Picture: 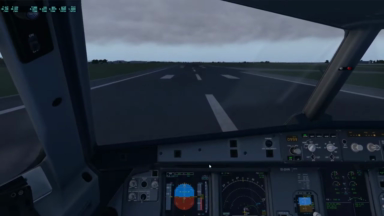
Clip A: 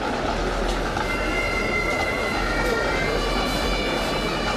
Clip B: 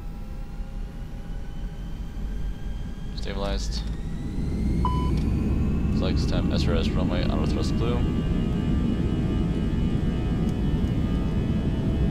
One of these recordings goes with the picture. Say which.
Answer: B